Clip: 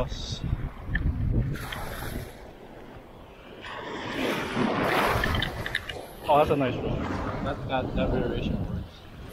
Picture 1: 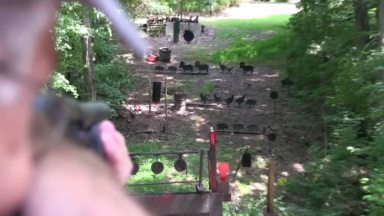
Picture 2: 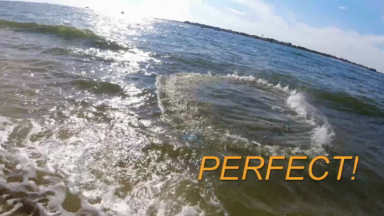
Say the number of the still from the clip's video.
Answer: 2